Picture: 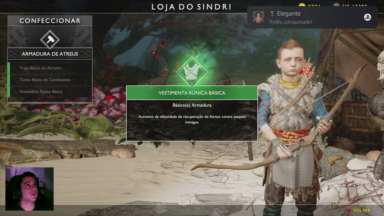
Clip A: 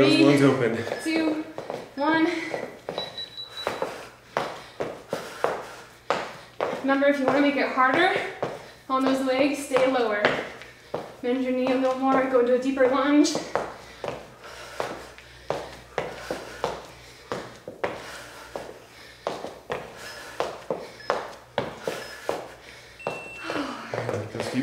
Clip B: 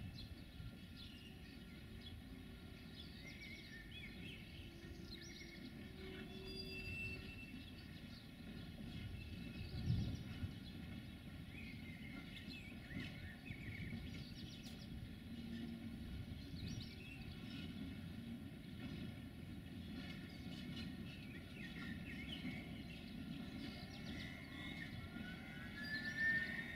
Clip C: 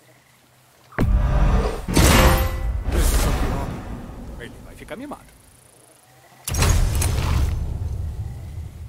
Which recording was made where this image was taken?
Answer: C